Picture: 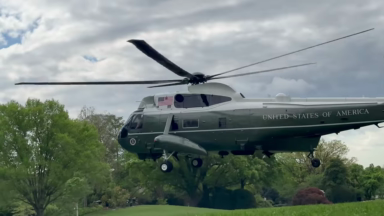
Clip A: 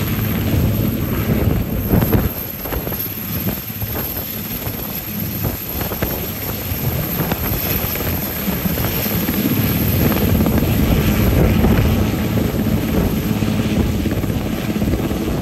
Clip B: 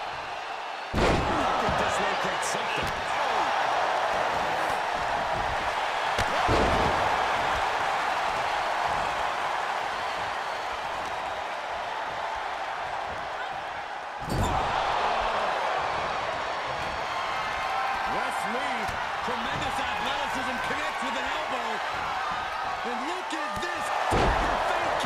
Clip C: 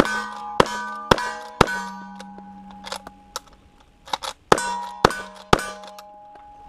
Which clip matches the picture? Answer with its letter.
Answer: A